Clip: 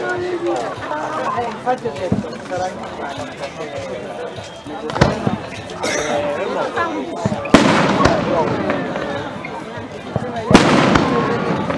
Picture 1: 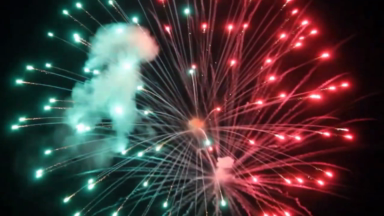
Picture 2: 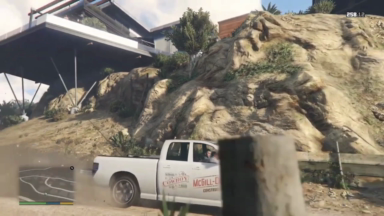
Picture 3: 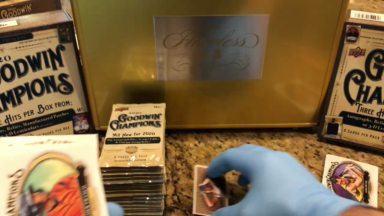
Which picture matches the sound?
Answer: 1